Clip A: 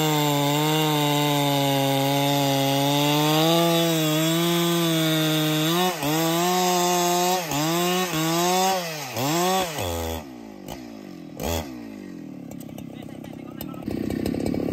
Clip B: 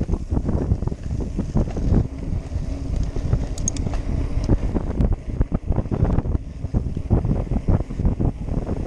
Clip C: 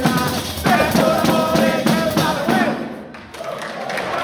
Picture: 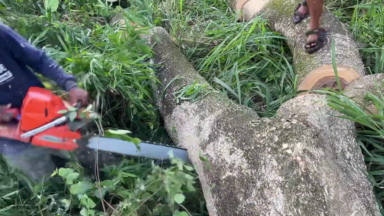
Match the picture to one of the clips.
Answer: A